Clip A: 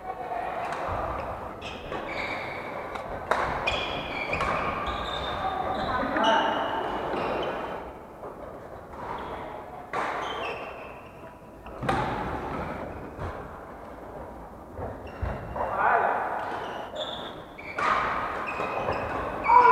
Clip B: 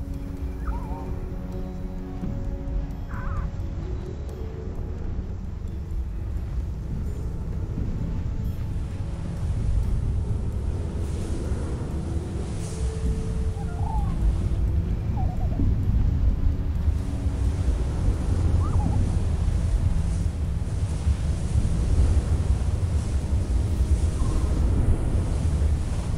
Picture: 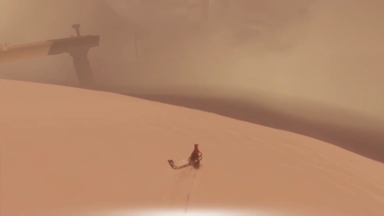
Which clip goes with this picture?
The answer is B